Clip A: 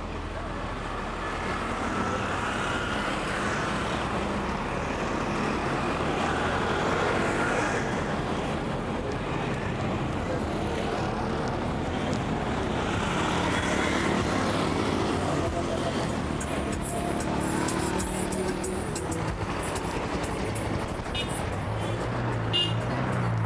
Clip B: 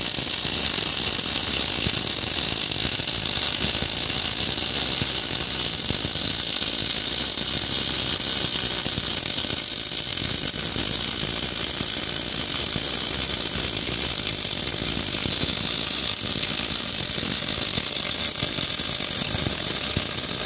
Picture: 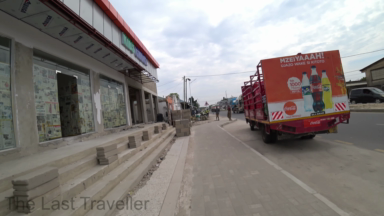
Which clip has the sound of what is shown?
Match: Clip A